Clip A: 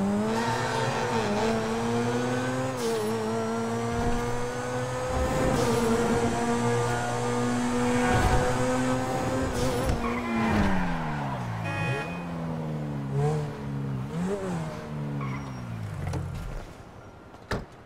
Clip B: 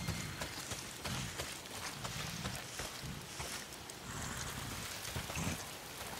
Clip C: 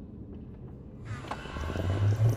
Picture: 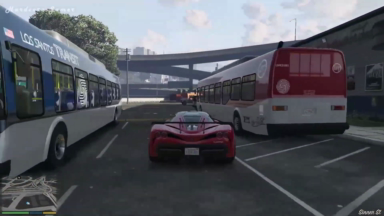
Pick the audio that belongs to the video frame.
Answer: A